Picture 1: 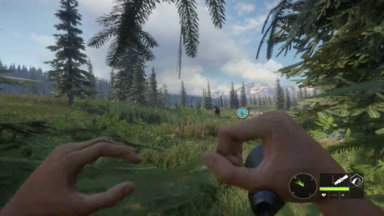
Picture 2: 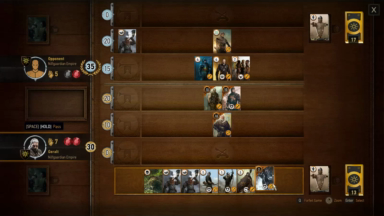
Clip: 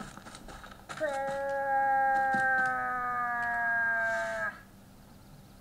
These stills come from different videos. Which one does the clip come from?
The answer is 1